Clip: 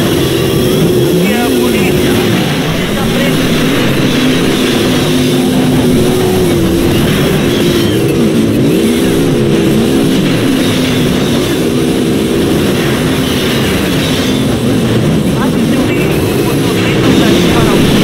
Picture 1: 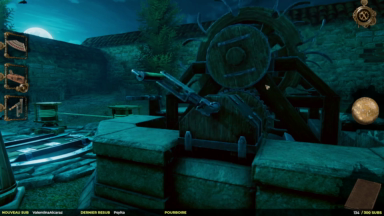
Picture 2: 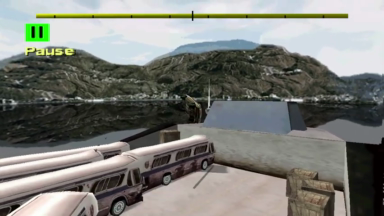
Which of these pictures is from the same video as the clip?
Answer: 2